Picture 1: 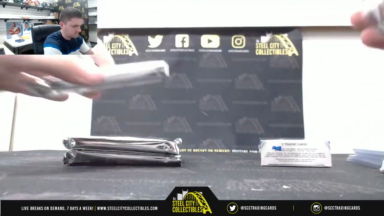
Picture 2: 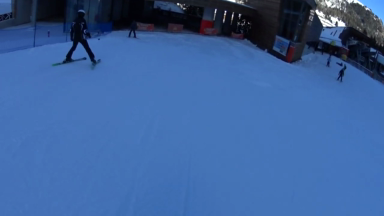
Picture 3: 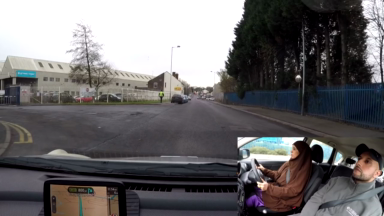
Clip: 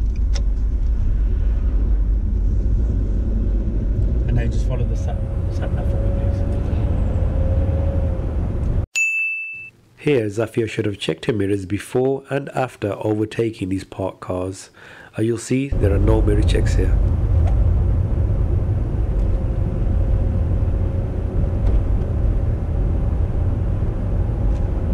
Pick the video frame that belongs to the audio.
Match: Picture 3